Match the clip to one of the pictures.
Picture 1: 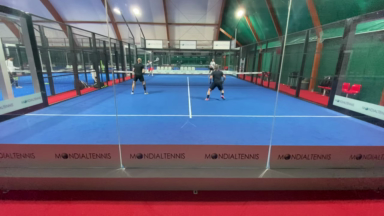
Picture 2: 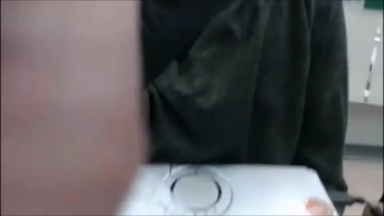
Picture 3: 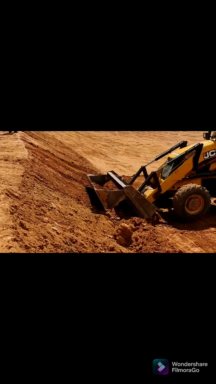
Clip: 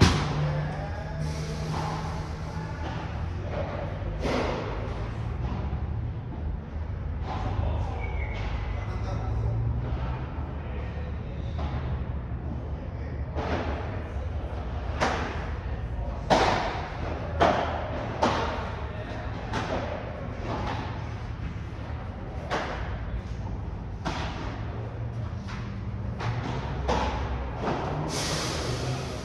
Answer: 1